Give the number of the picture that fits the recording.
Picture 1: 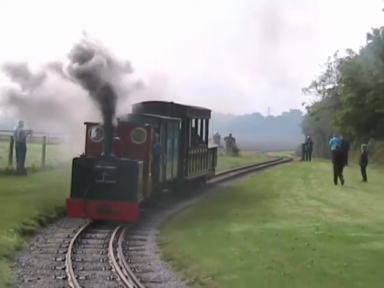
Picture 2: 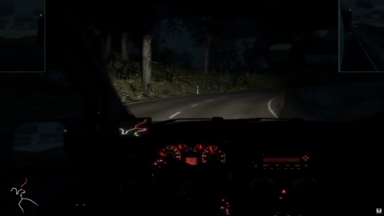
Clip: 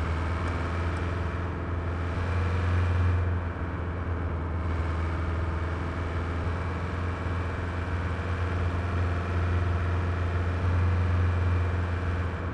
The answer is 2